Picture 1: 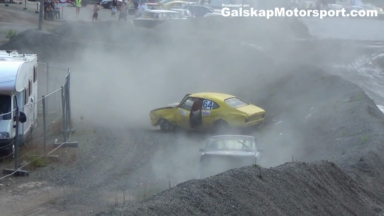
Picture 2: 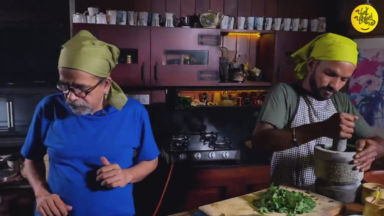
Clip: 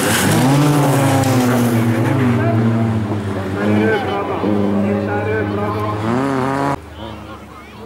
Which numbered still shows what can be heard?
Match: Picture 1